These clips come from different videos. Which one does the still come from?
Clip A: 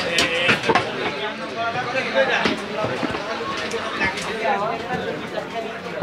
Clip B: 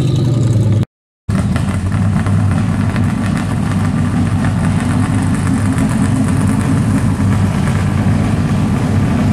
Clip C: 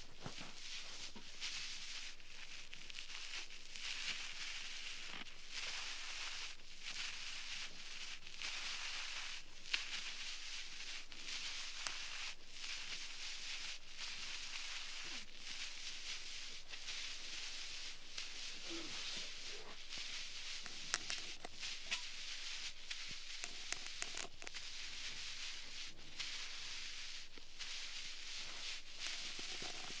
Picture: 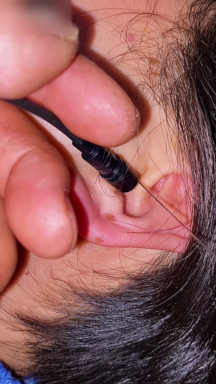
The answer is C